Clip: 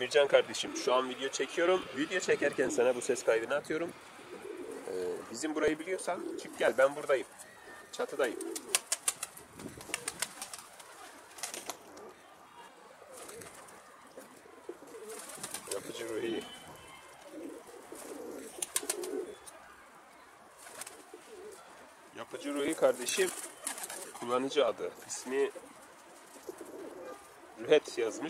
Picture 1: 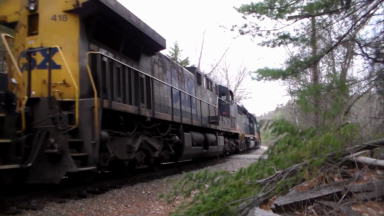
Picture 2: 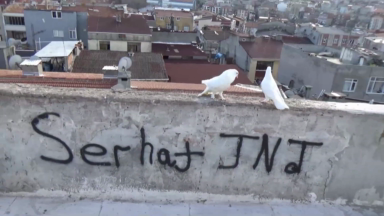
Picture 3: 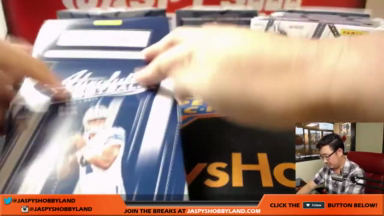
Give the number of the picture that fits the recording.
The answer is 2